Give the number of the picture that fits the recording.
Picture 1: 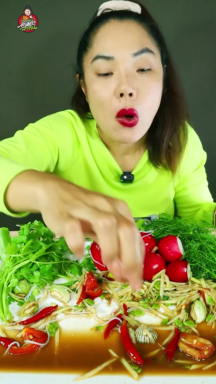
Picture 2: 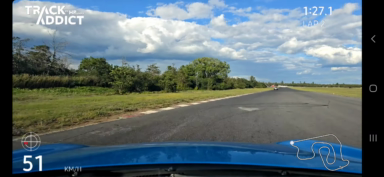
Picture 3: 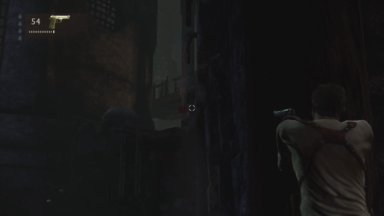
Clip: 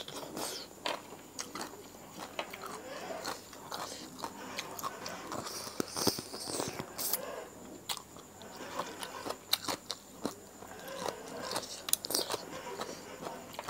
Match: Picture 1